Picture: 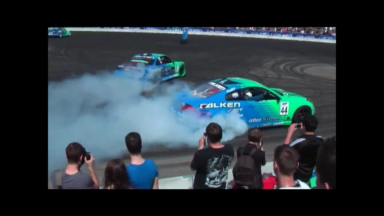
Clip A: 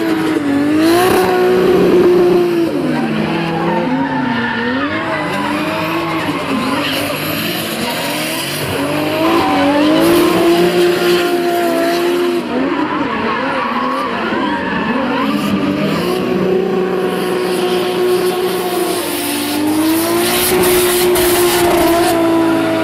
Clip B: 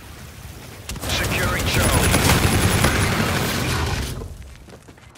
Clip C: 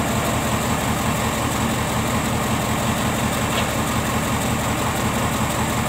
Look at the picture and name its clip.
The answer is A